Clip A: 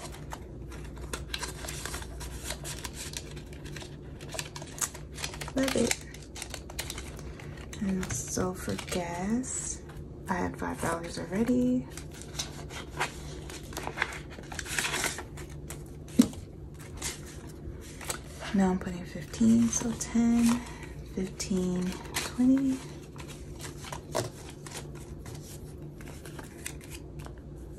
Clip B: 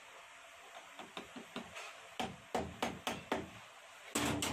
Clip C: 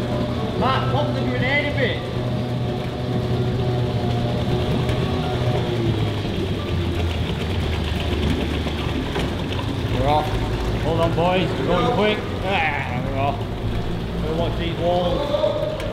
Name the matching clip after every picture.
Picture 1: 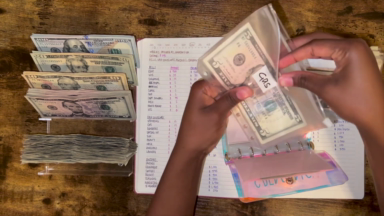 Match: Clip A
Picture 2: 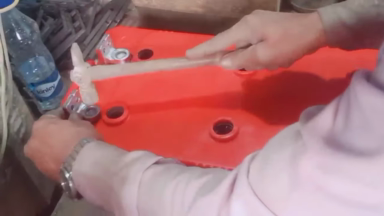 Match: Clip B